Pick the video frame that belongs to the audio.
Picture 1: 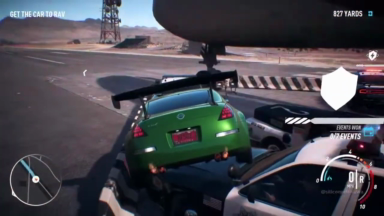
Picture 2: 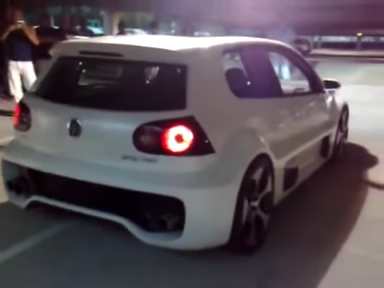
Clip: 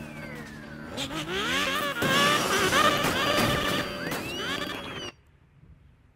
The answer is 1